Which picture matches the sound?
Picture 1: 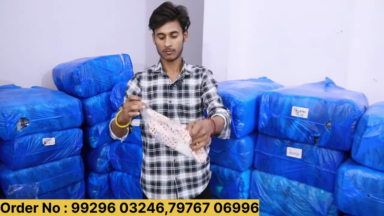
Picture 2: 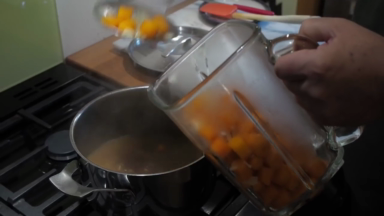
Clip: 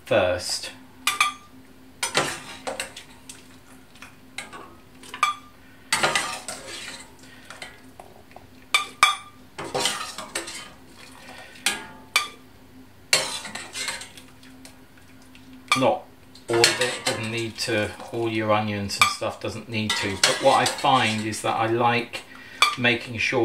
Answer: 2